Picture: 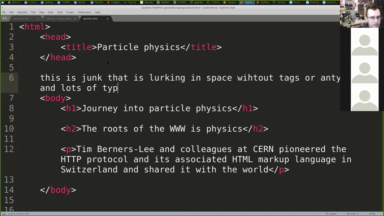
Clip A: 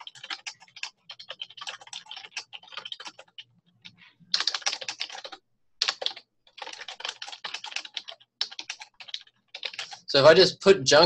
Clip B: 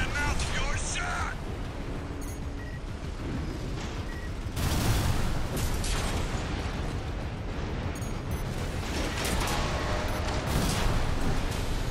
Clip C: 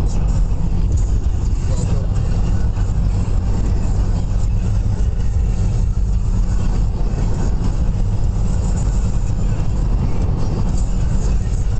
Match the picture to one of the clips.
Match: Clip A